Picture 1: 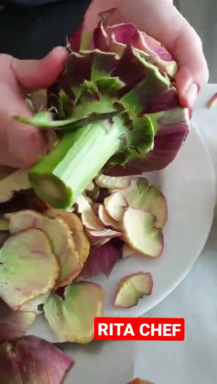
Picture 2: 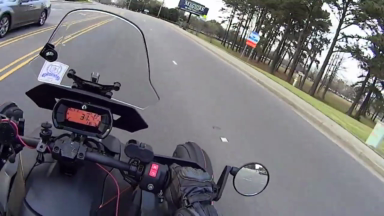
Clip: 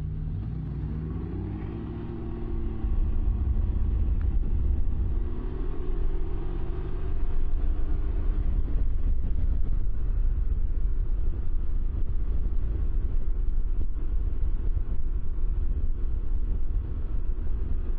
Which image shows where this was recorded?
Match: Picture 2